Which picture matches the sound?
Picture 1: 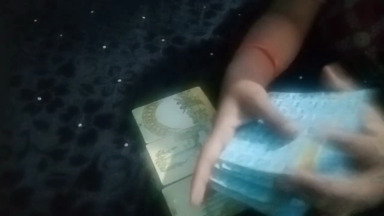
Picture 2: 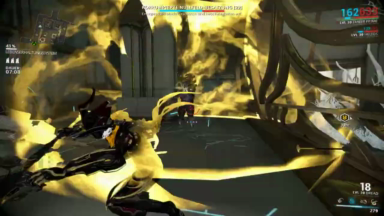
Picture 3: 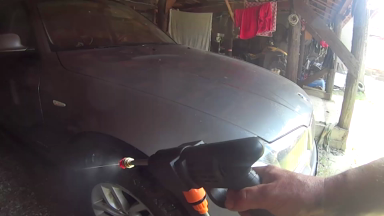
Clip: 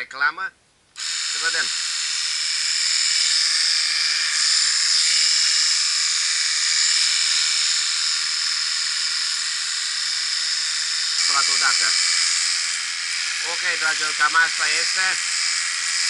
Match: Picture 3